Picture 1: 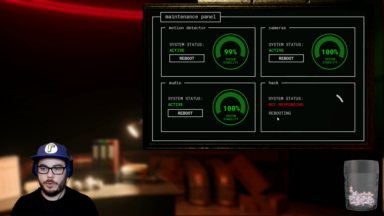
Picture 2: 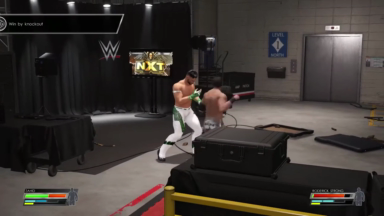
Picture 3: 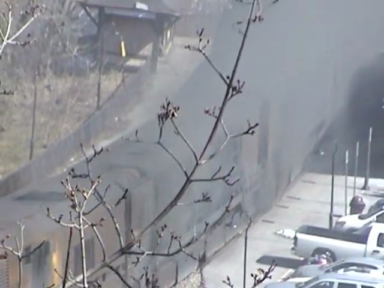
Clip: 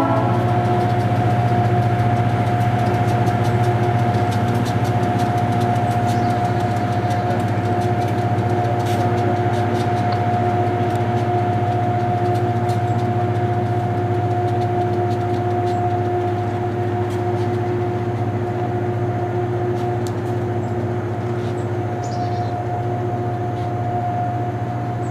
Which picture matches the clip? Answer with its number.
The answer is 3